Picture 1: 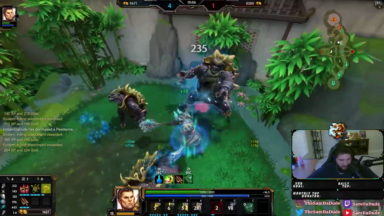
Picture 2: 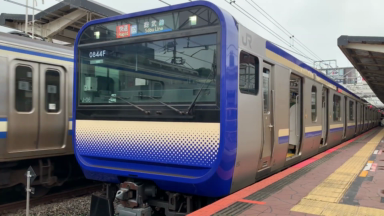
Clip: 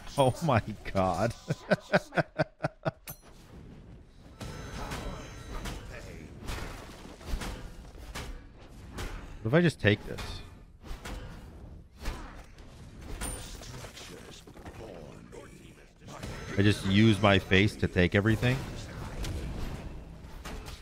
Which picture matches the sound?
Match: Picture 1